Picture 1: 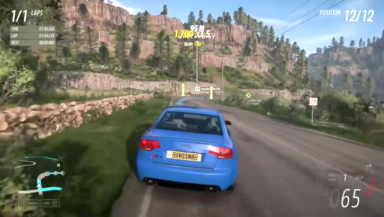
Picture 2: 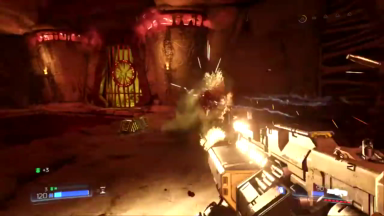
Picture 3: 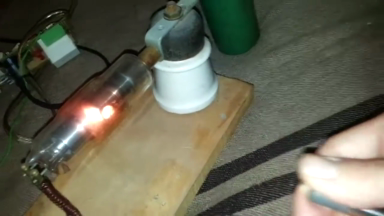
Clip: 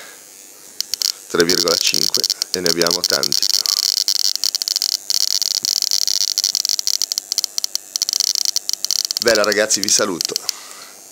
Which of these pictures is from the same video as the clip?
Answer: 3